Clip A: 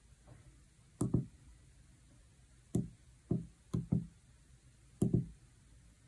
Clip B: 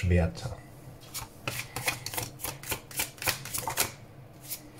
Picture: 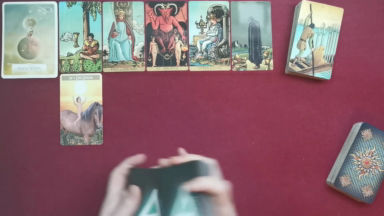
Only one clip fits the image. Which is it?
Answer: B